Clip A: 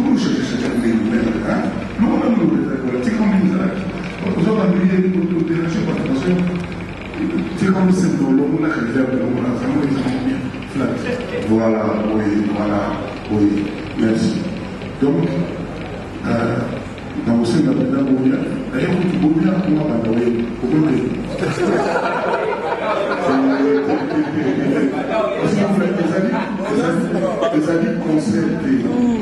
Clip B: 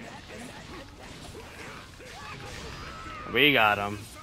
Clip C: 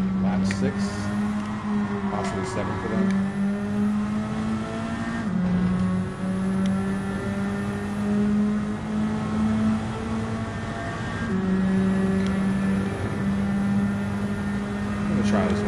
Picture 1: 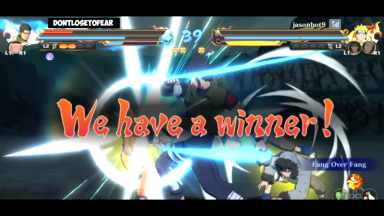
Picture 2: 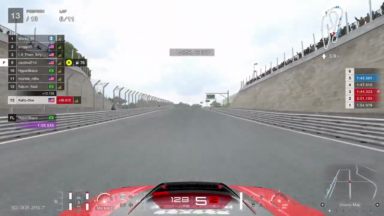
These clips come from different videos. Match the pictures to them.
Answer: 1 B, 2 C